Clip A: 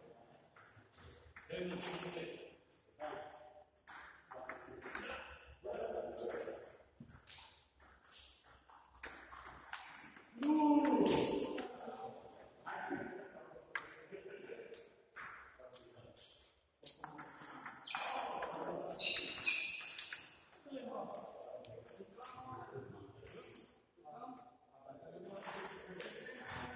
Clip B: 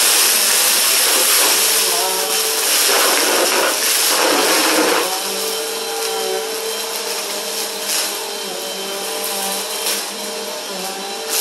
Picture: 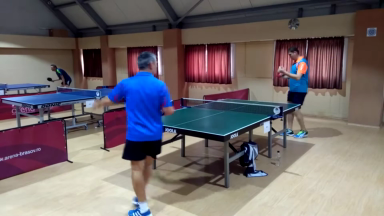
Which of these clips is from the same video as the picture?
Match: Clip A